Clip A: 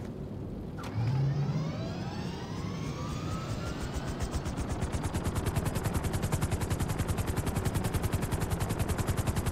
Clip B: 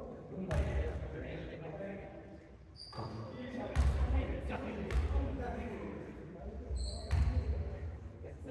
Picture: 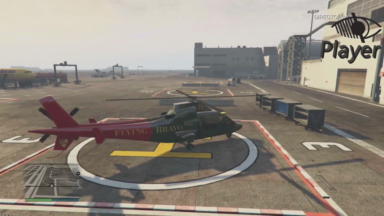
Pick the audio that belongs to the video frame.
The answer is A